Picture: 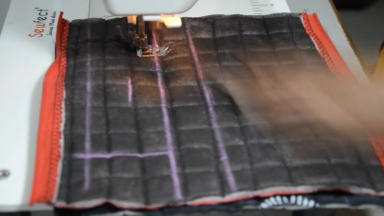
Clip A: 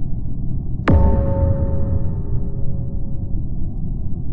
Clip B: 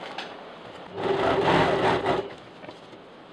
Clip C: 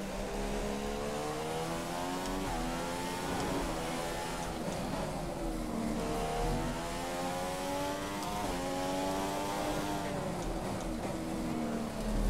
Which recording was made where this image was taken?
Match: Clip B